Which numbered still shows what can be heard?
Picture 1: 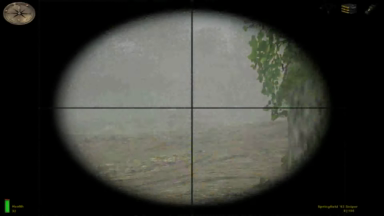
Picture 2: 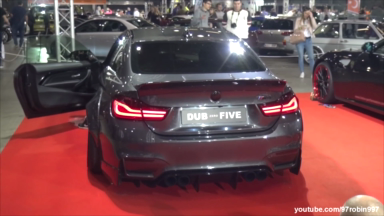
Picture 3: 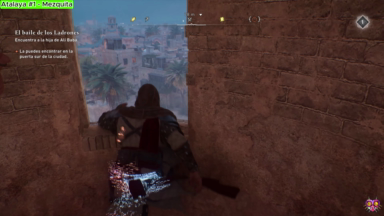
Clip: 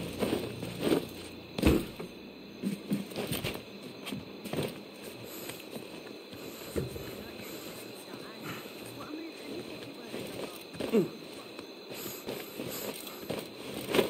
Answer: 3